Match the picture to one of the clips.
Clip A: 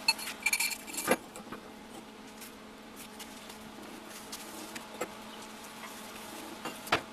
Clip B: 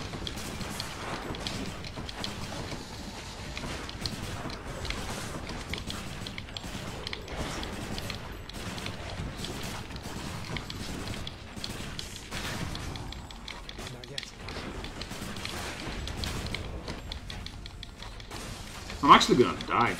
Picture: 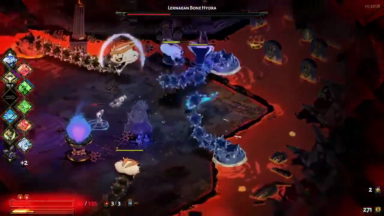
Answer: B